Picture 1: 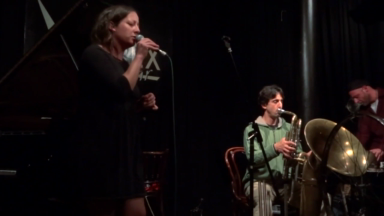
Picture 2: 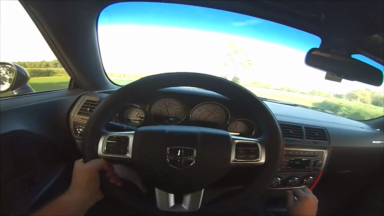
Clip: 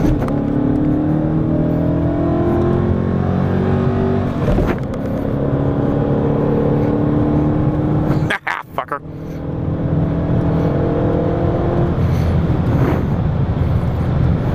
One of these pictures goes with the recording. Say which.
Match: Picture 2